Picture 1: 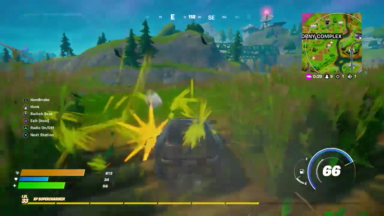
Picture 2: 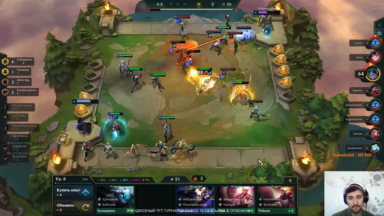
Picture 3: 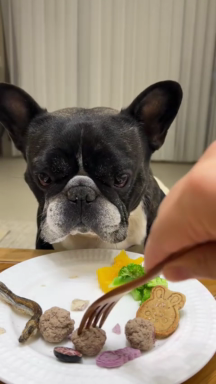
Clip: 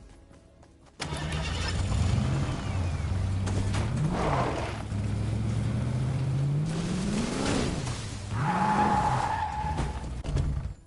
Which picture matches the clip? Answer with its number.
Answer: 1